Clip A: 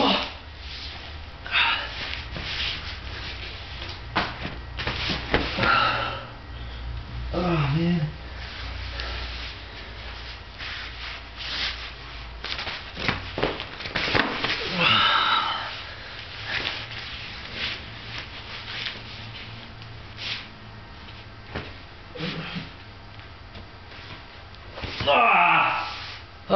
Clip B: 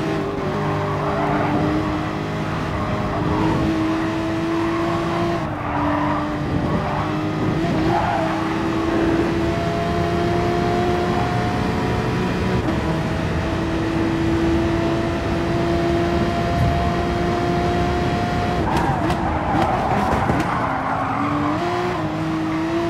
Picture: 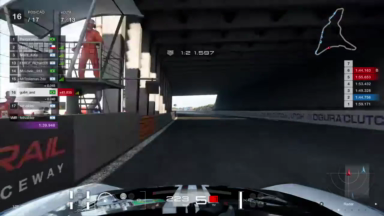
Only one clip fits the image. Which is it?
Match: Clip B